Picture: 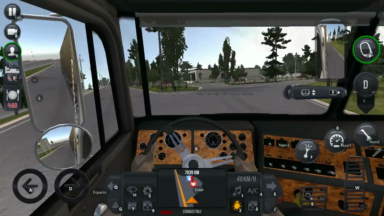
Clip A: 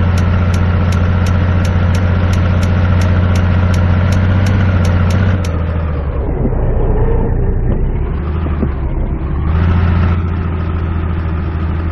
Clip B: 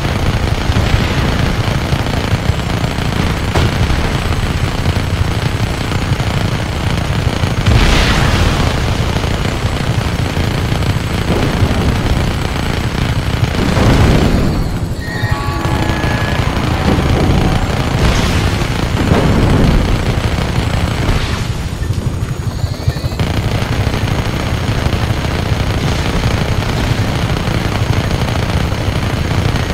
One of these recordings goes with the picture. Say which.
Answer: A